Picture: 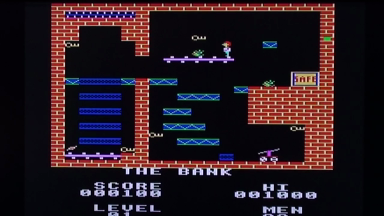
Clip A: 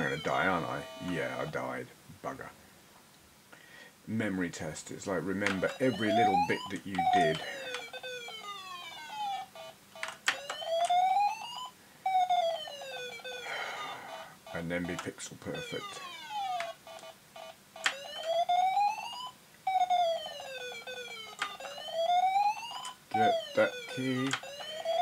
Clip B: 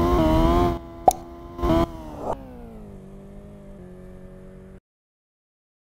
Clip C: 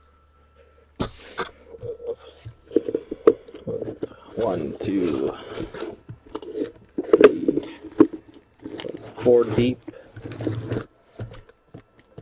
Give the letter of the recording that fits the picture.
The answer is A